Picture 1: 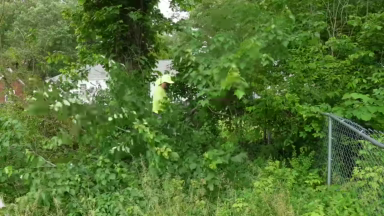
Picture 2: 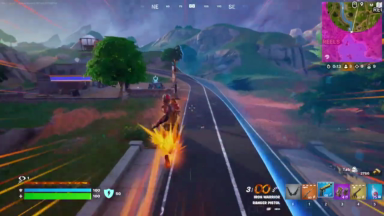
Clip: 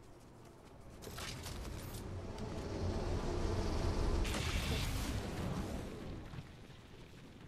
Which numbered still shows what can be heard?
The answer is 2